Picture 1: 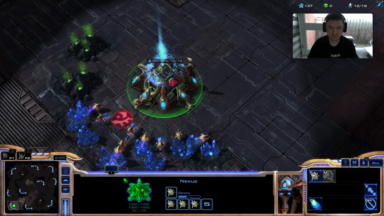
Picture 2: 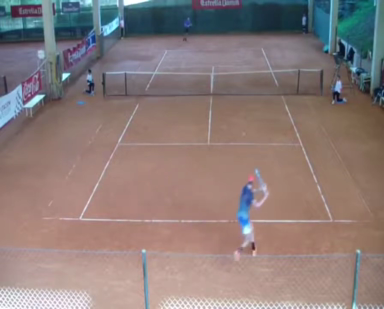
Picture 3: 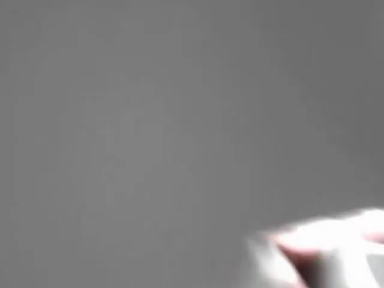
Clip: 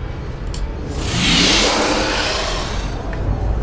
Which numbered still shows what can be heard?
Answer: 1